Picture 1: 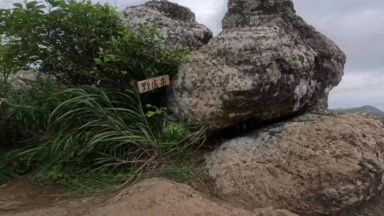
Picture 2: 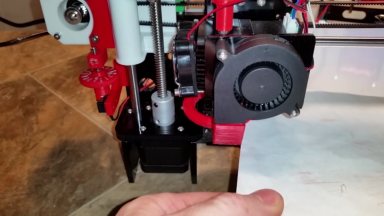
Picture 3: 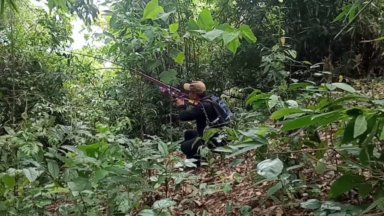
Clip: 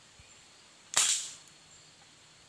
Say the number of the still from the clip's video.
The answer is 3